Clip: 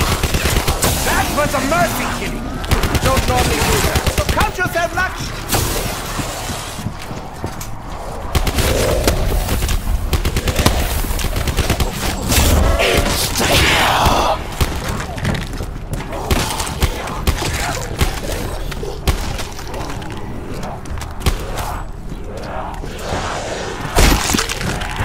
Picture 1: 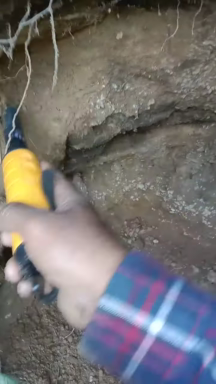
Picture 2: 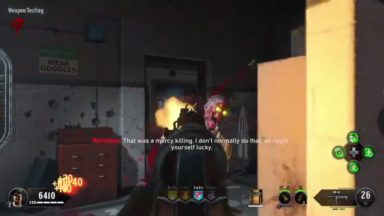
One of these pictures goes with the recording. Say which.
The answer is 2